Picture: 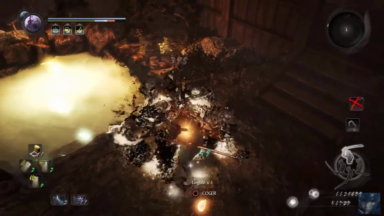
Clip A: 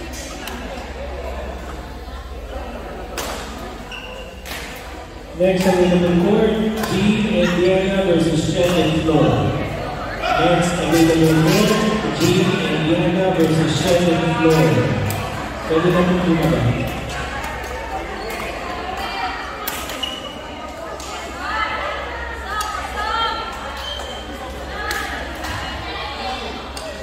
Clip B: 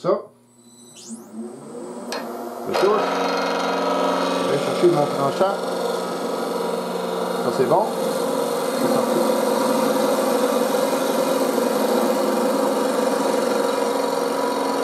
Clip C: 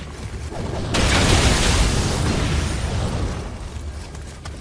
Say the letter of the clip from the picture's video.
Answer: C